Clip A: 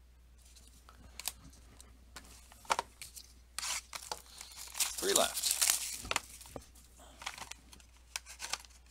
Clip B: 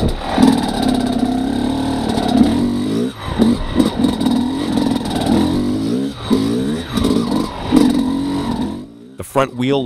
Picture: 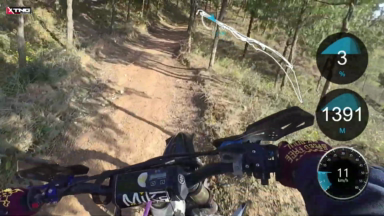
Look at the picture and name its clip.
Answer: B